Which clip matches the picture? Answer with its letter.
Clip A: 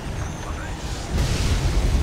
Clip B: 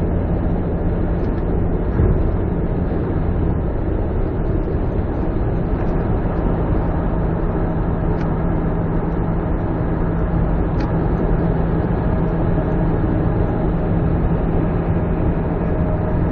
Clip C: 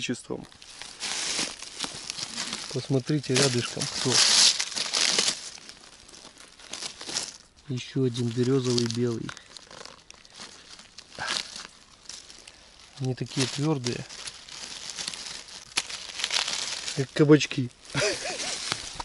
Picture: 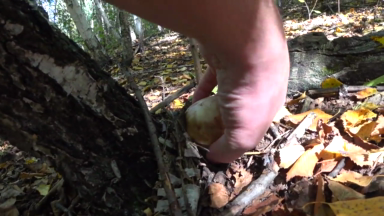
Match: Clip C